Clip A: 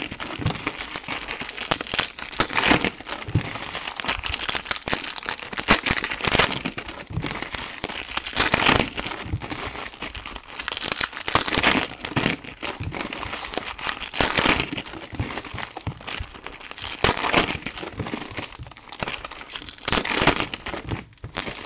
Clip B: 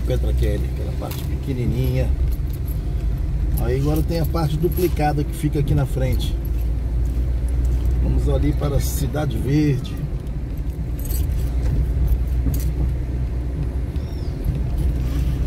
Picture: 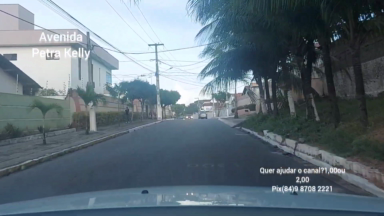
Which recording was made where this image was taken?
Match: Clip B